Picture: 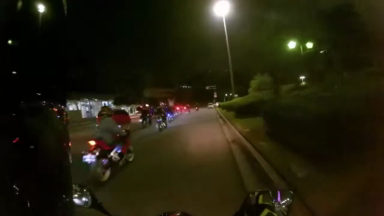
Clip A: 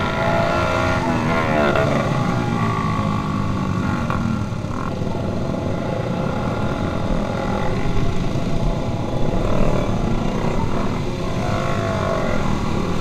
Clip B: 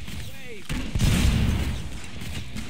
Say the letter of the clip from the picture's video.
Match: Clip A